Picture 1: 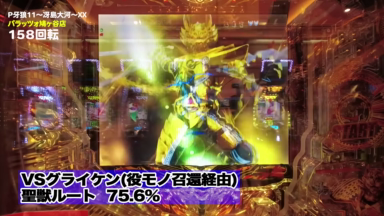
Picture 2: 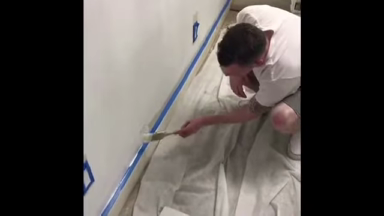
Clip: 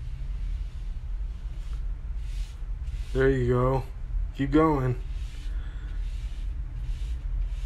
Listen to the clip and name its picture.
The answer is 2